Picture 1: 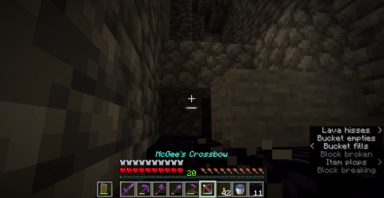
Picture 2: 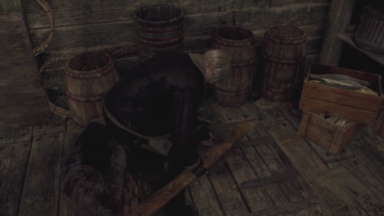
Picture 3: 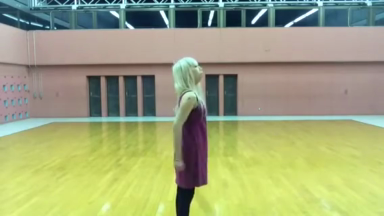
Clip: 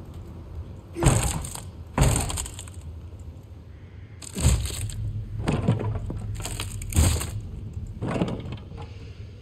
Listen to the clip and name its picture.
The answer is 2